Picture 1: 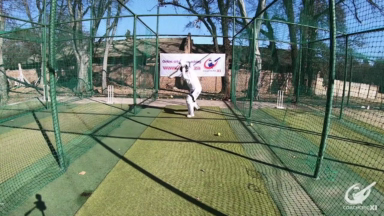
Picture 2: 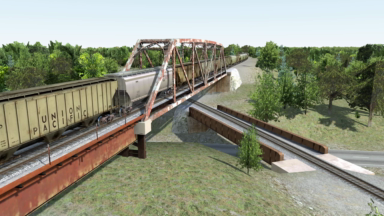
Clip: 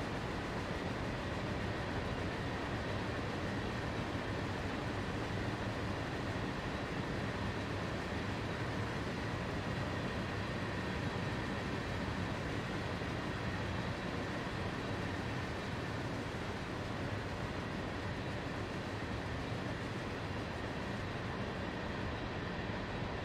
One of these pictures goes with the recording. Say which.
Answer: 2